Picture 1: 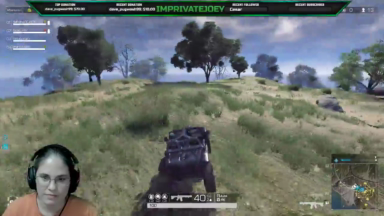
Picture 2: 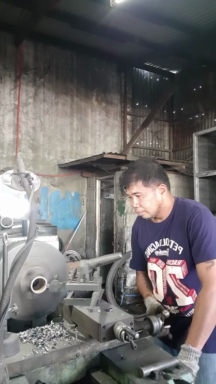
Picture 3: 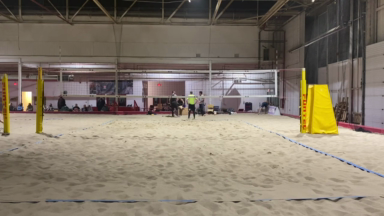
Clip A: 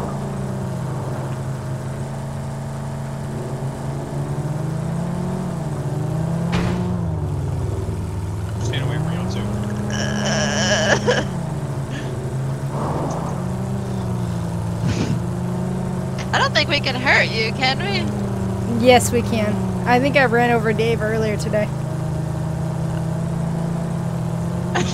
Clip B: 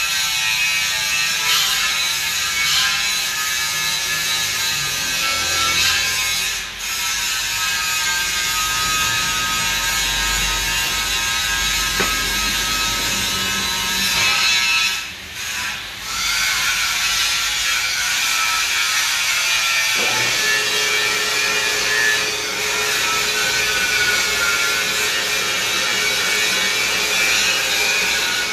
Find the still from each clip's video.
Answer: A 1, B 2